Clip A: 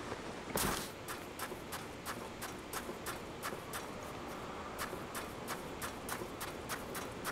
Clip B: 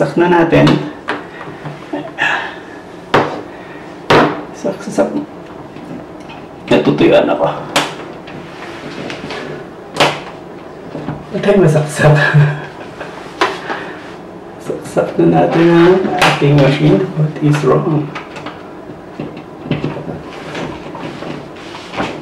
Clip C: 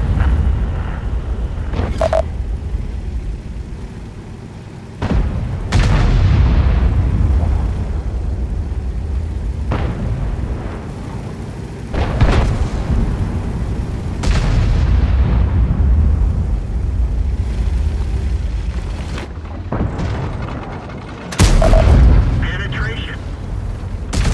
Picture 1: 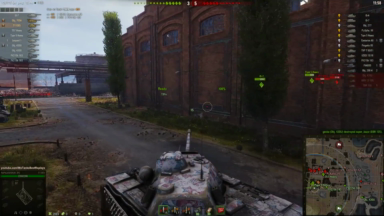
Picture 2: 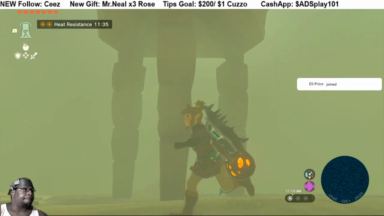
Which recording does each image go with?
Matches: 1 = C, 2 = A